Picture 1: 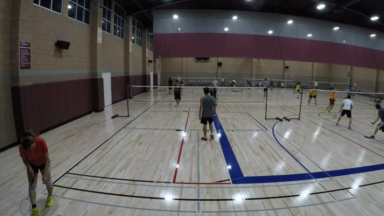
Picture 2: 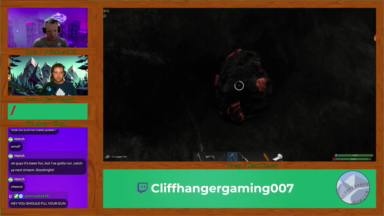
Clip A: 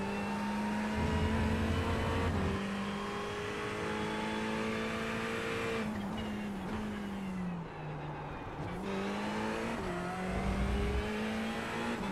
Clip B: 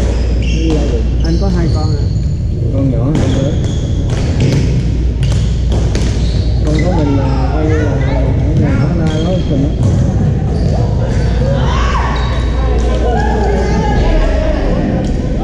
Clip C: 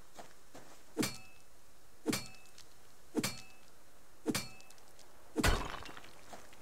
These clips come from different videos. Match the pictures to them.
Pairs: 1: B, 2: C